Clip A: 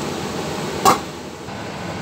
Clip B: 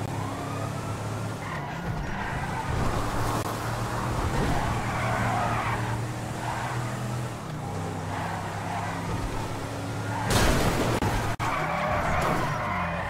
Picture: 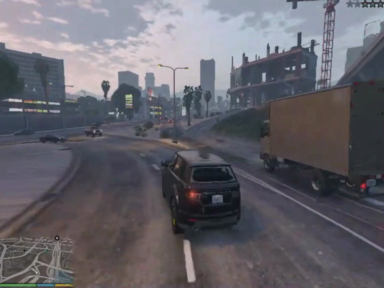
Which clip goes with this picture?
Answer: B